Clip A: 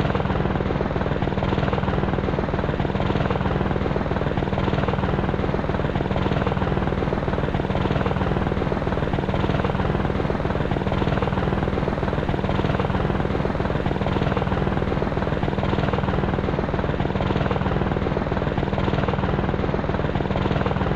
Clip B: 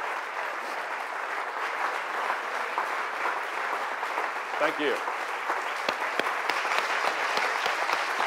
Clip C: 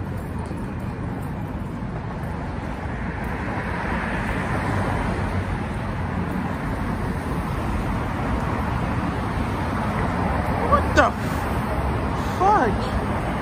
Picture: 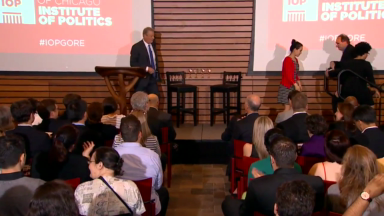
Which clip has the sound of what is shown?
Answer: B